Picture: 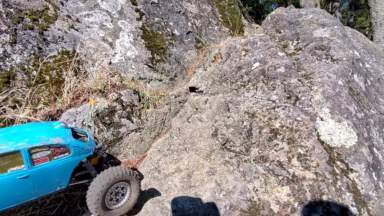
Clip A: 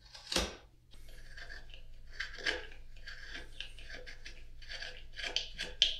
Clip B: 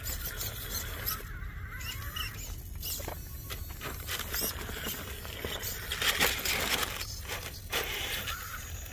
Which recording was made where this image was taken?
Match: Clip B